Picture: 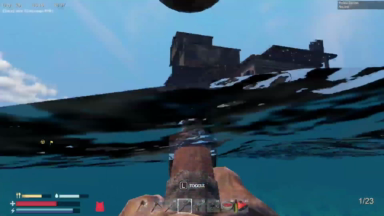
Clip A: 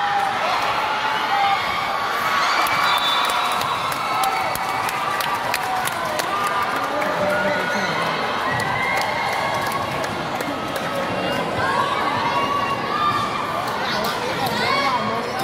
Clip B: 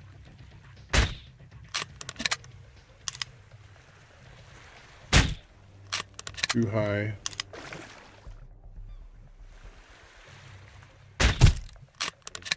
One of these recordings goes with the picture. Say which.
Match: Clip B